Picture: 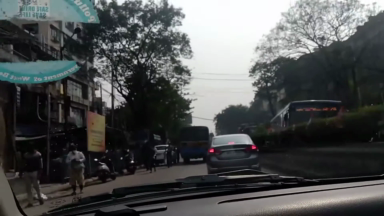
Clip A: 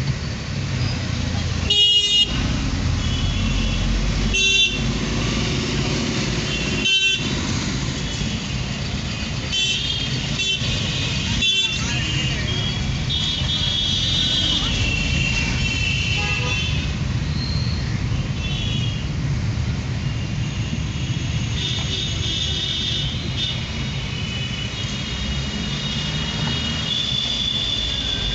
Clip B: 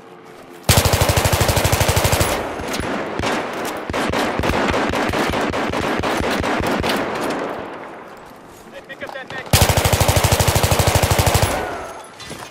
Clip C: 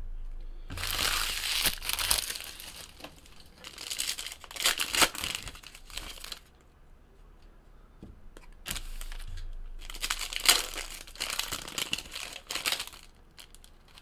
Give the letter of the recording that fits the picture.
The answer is A